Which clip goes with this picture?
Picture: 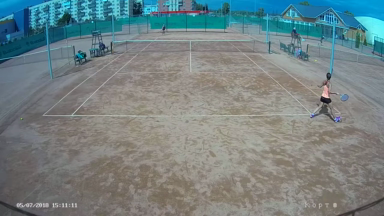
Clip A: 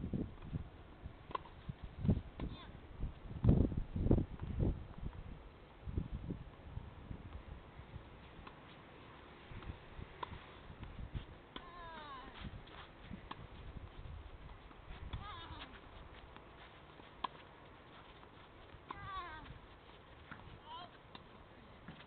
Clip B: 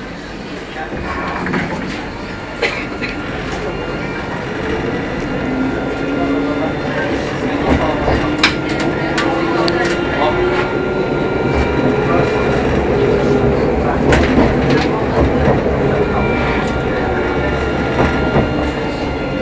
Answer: A